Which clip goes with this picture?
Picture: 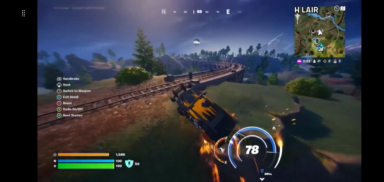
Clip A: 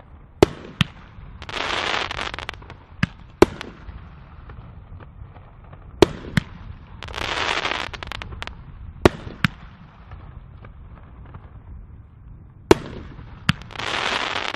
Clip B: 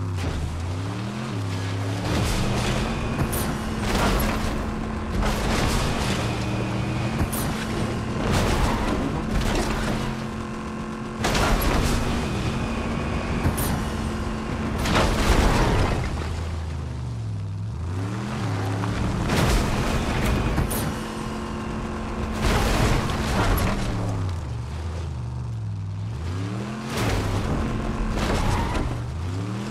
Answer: B